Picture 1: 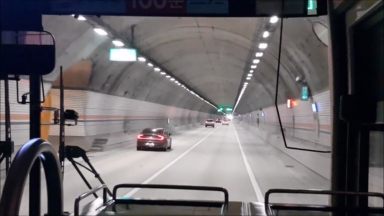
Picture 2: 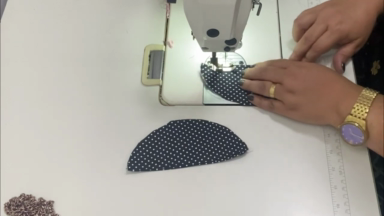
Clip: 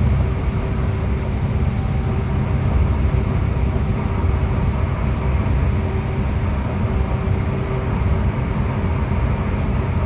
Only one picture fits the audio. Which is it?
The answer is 1